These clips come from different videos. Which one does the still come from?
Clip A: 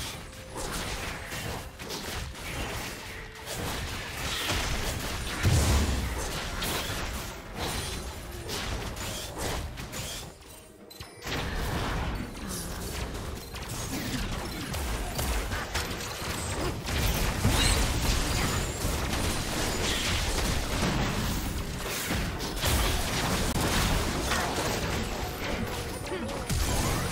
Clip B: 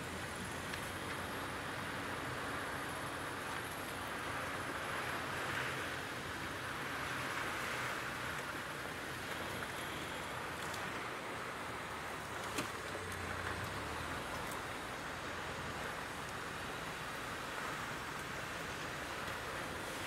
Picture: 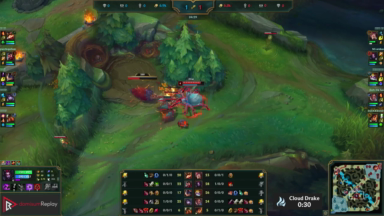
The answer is A